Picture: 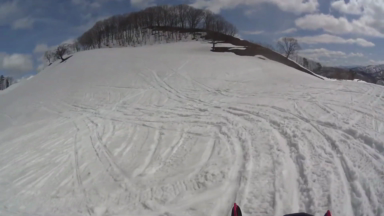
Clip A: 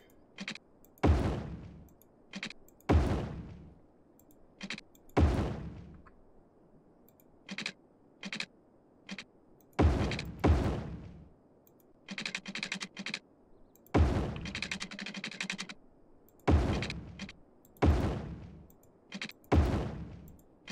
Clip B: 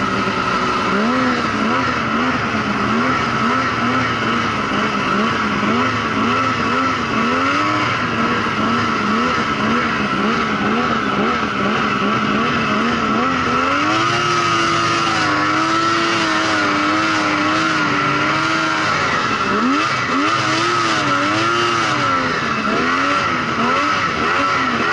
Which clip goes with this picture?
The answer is B